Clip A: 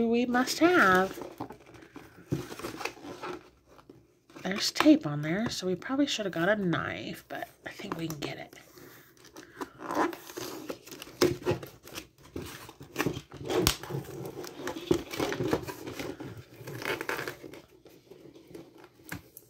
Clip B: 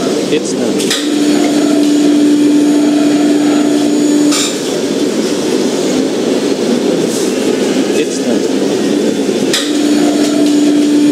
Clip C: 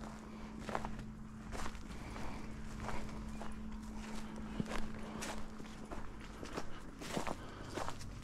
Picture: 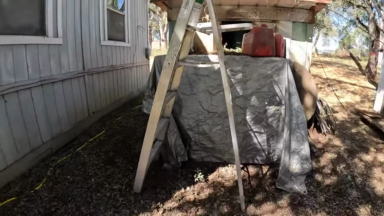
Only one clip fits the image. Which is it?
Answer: C